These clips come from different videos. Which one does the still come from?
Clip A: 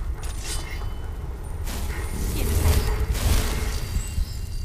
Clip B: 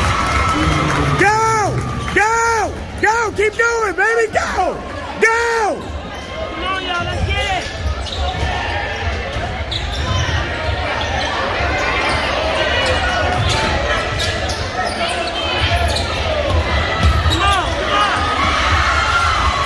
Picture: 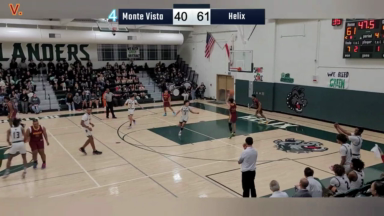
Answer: B